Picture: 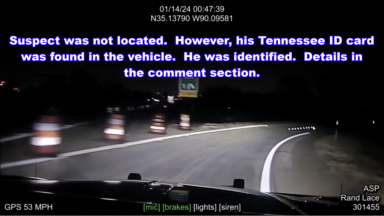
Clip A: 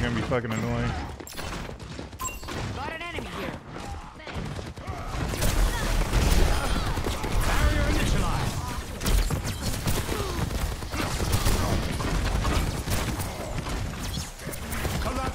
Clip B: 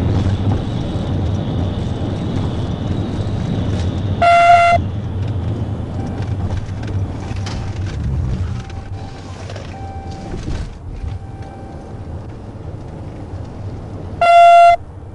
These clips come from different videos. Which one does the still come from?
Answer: B